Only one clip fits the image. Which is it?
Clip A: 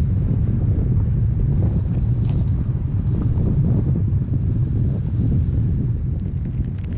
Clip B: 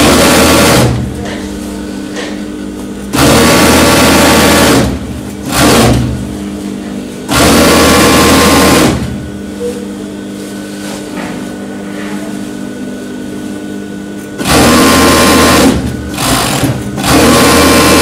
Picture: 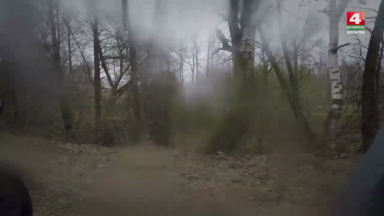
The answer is A